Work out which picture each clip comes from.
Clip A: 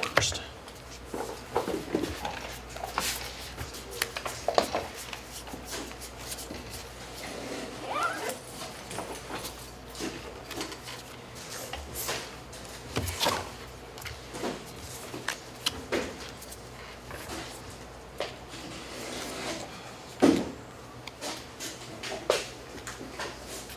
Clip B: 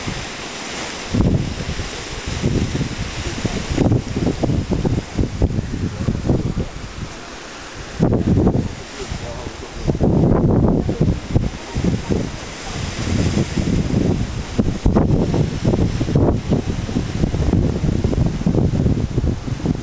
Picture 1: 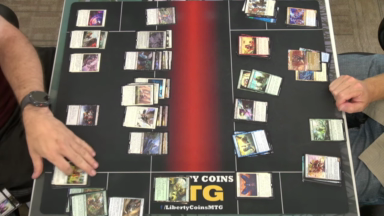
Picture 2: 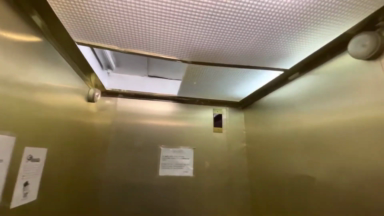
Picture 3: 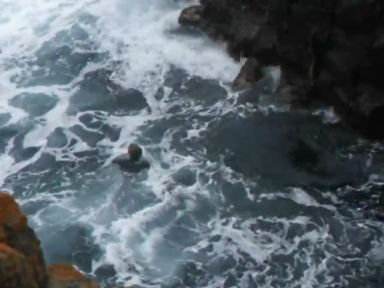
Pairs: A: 1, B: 3